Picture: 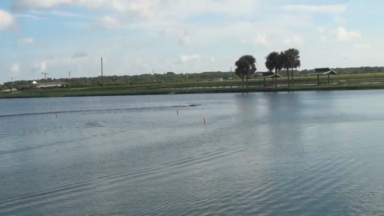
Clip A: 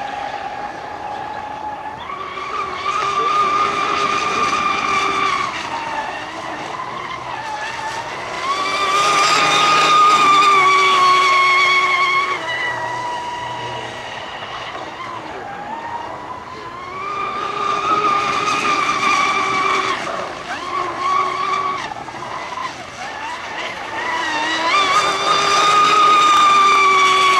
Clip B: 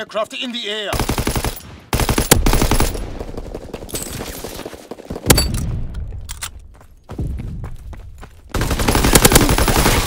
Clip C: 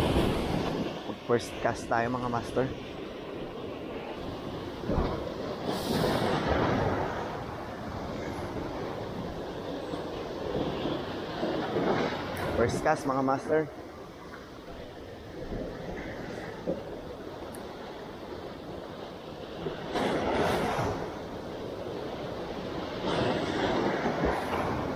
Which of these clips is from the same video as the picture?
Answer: A